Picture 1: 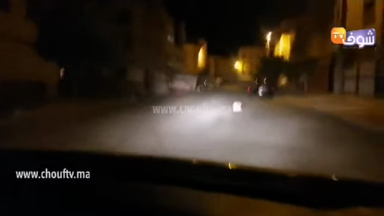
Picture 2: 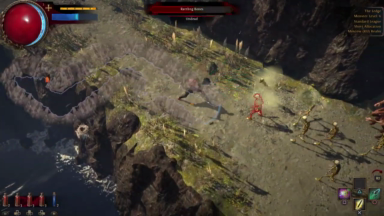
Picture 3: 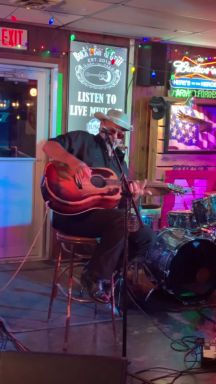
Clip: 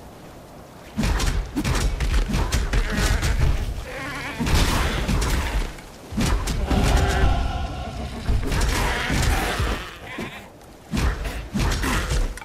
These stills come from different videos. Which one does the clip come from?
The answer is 2